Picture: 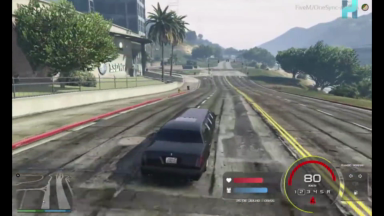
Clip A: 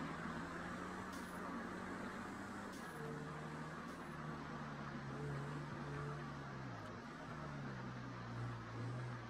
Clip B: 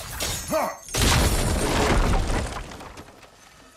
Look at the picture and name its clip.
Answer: A